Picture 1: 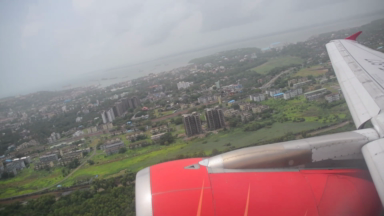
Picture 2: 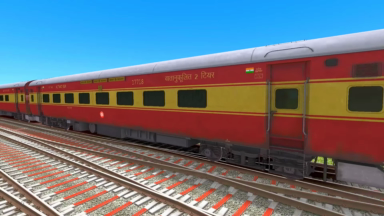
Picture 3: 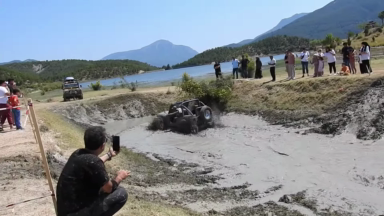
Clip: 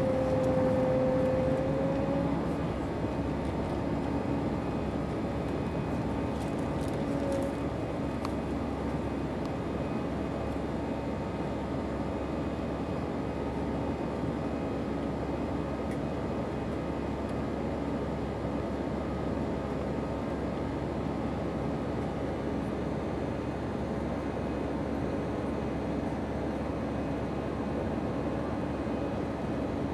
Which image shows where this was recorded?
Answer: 1